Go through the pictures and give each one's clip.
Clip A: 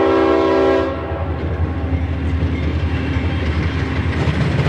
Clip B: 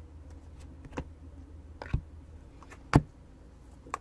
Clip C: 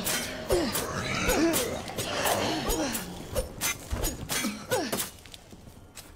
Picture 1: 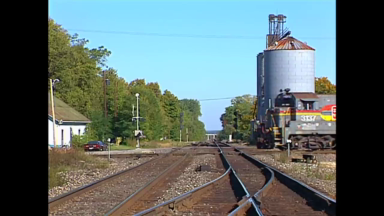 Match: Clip A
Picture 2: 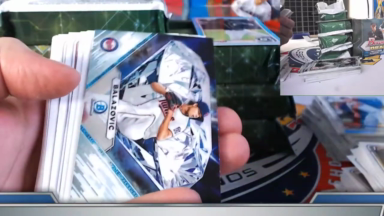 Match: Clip B